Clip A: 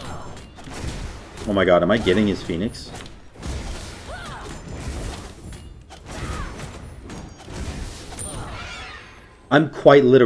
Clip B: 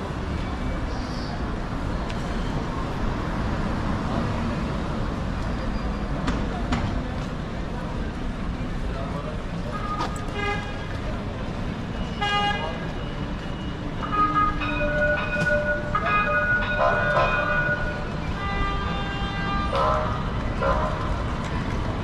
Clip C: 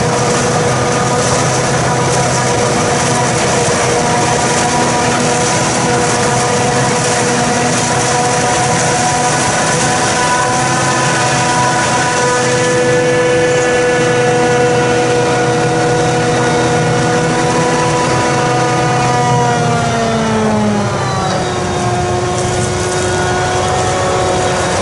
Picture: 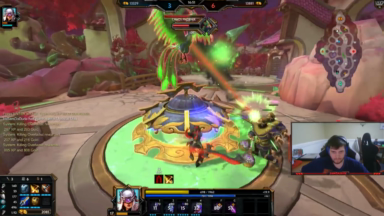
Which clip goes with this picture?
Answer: A